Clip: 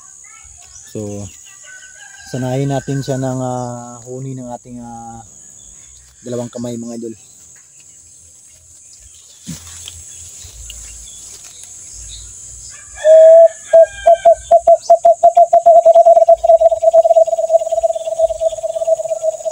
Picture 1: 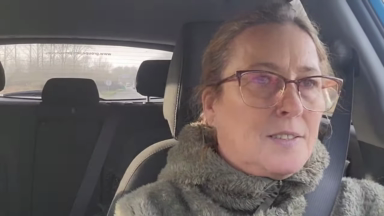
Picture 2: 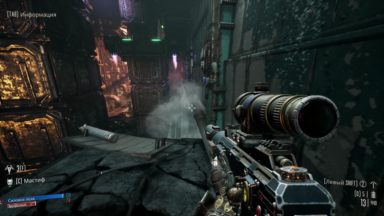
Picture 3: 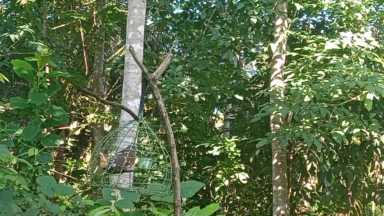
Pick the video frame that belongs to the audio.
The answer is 3